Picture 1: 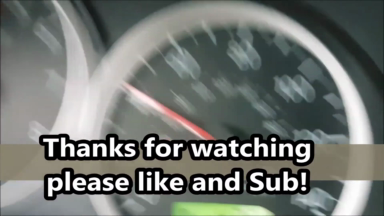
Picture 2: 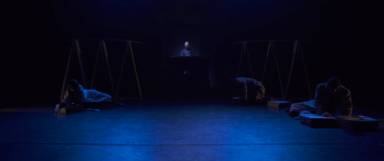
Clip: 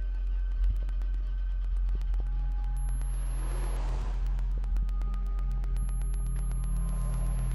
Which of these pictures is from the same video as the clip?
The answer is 2